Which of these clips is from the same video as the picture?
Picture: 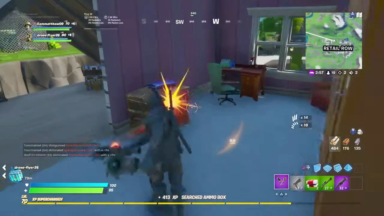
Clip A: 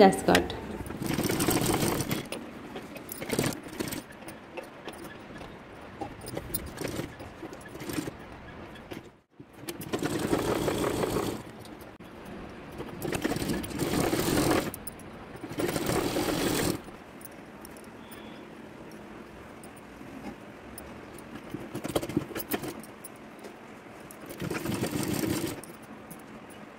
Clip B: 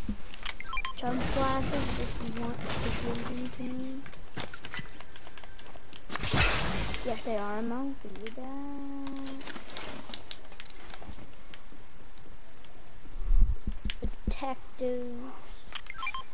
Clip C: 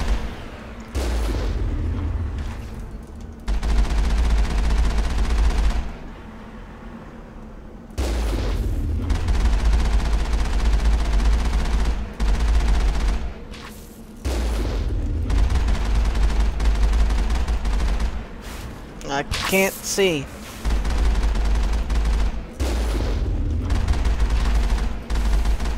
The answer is B